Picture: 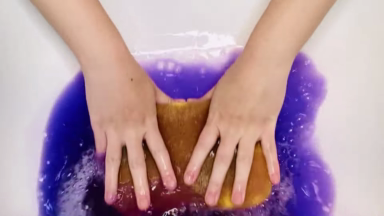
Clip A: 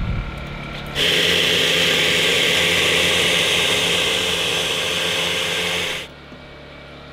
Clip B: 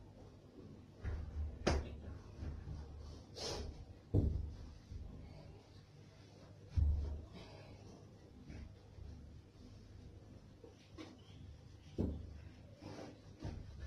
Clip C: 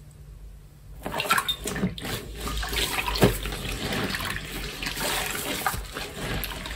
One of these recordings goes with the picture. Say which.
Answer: C